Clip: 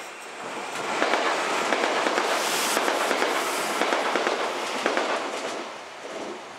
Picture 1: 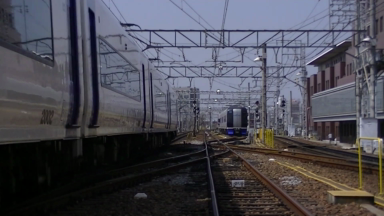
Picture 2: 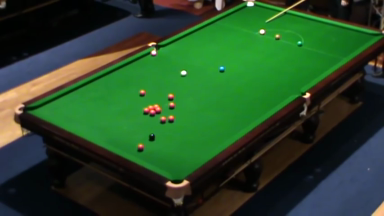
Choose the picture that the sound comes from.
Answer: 1